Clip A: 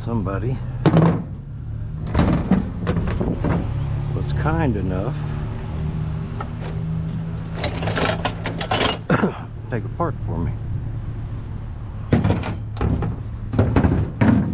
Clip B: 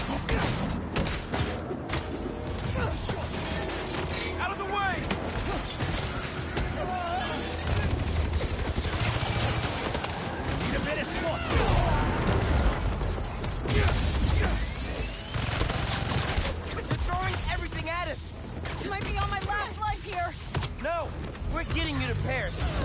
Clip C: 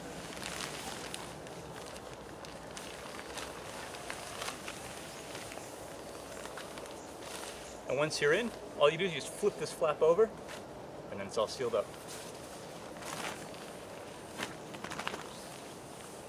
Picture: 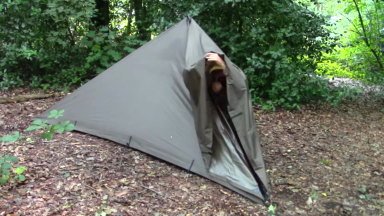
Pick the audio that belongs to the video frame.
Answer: C